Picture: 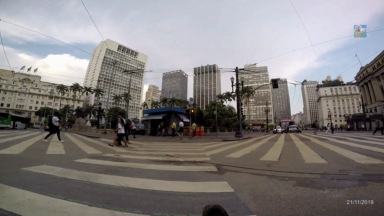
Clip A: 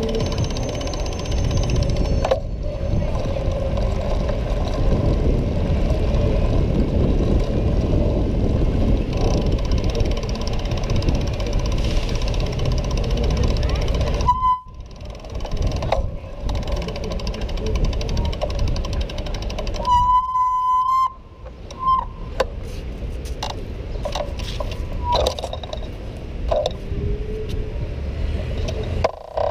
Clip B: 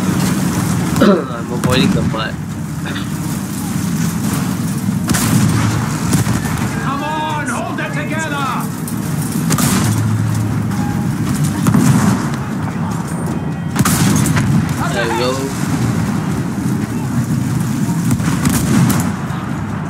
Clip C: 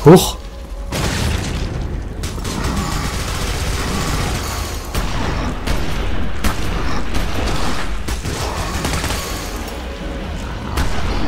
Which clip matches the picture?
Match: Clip A